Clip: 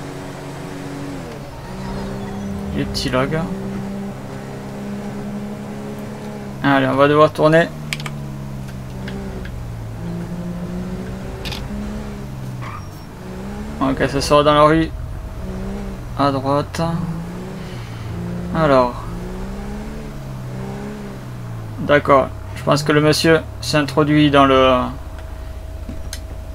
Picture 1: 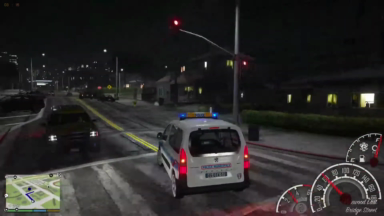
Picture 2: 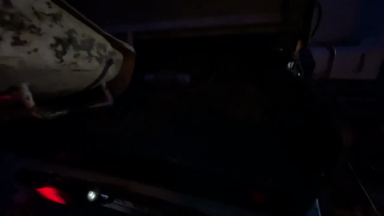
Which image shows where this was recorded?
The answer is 1